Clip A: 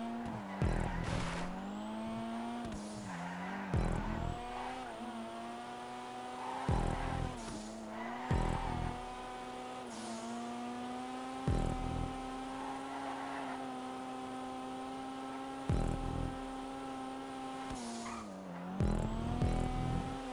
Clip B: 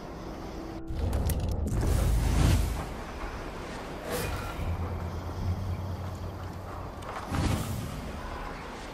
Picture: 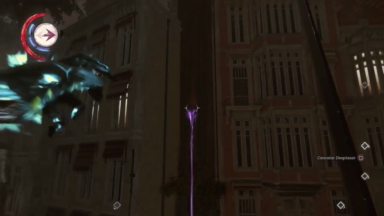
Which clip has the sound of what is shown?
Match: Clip B